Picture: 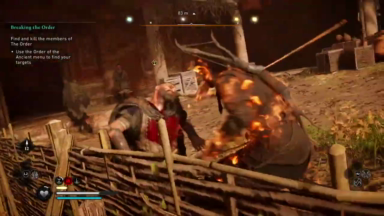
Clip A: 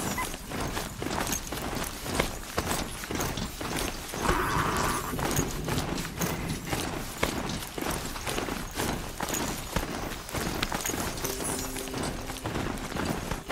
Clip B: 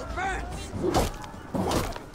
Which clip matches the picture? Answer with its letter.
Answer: B